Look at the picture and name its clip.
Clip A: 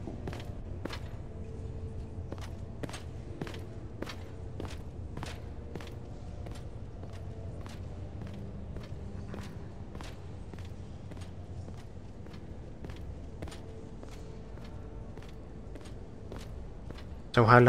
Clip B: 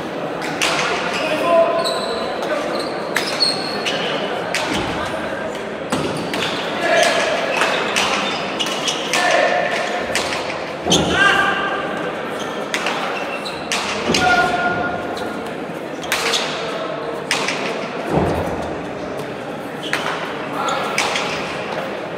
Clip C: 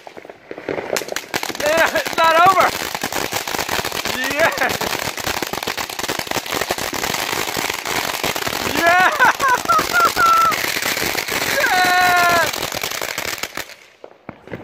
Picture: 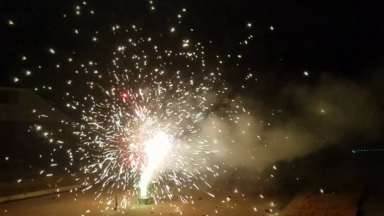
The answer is C